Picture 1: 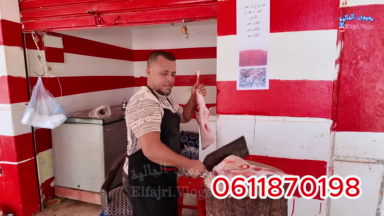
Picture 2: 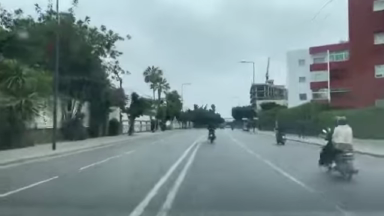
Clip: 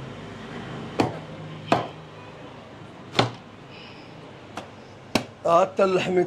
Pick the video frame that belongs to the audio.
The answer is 1